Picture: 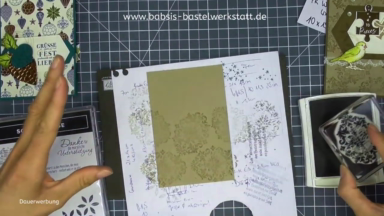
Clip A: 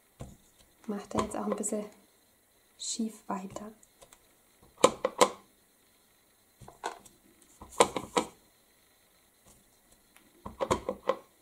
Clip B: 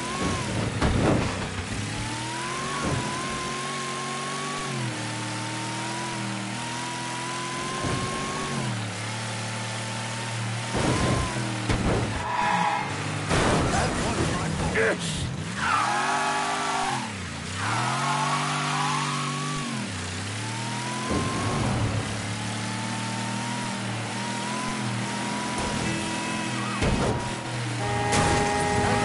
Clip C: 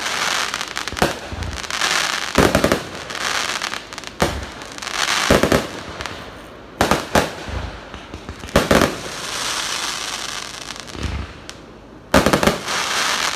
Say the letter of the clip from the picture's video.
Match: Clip A